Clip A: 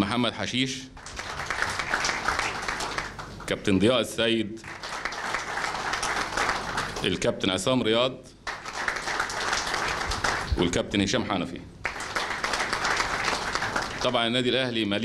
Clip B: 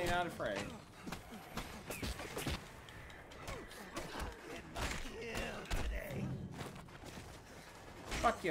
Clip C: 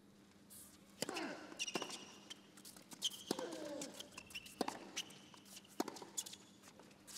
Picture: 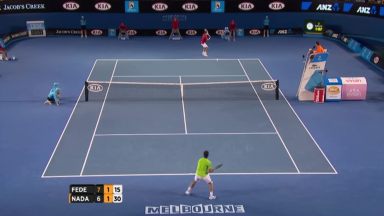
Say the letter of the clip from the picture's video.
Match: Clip C